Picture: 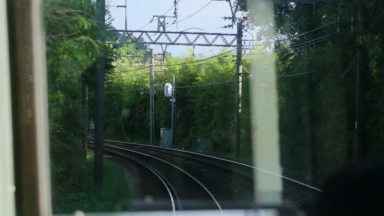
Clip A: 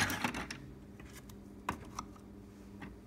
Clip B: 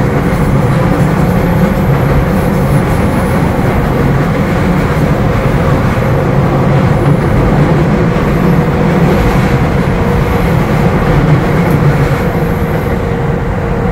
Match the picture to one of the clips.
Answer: B